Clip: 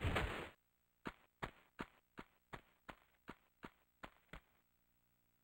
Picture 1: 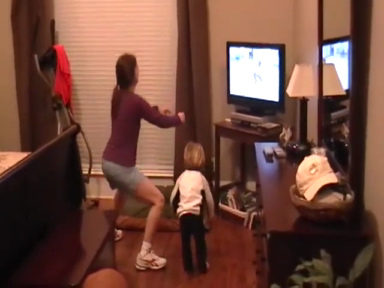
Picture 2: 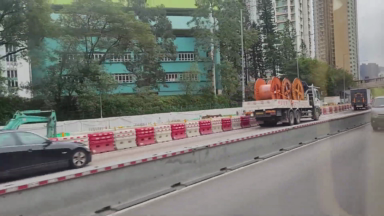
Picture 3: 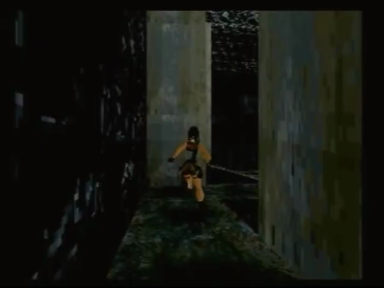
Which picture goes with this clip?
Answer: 3